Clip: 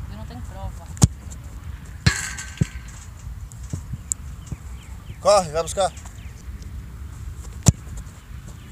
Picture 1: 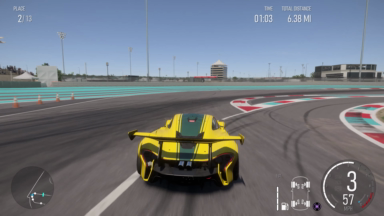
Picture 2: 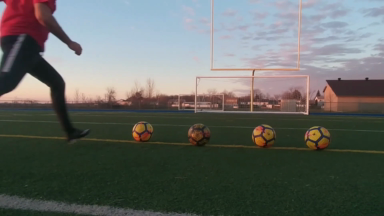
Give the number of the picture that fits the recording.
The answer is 2